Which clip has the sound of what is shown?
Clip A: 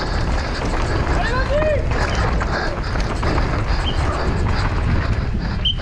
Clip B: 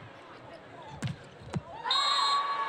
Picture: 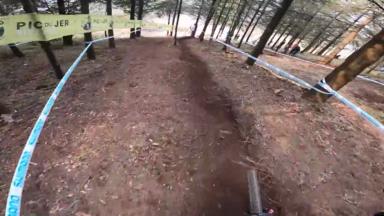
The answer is A